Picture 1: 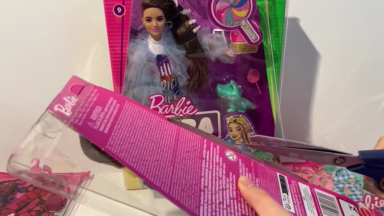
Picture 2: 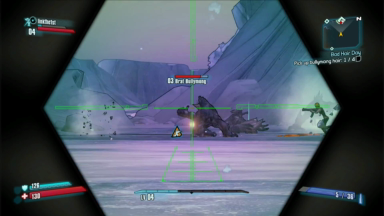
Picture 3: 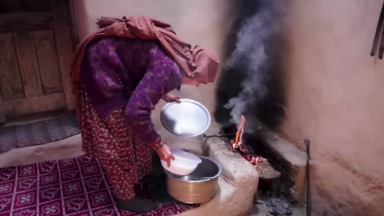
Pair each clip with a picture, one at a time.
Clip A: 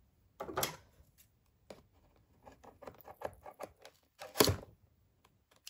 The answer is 1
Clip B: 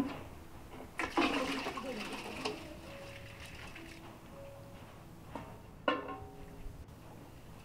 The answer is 3